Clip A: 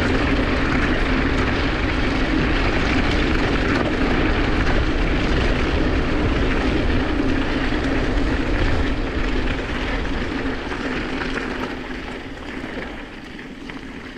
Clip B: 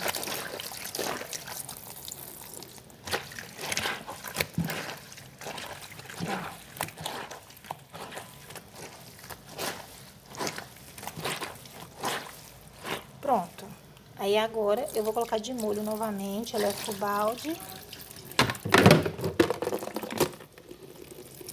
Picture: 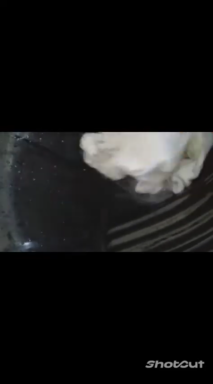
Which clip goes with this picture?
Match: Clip B